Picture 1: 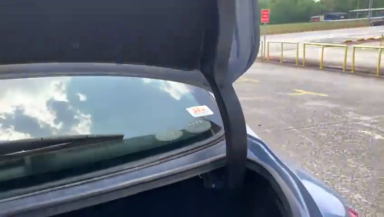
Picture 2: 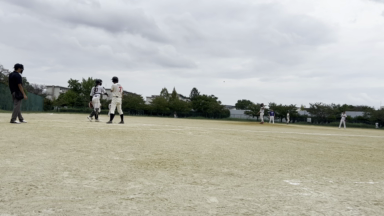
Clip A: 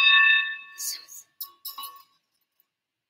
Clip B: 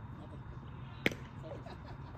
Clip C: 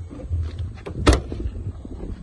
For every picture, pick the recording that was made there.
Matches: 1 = C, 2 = B